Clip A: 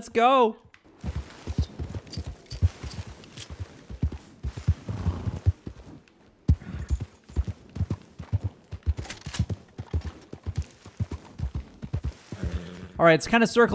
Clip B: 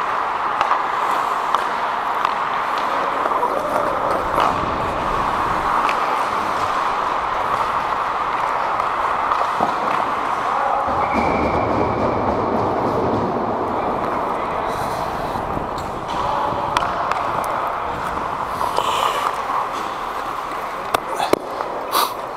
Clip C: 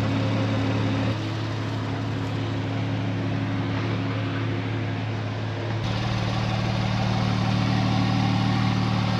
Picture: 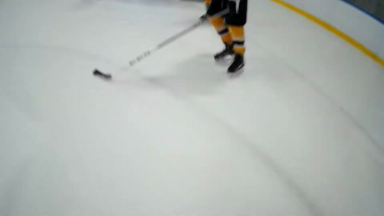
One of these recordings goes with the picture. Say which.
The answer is B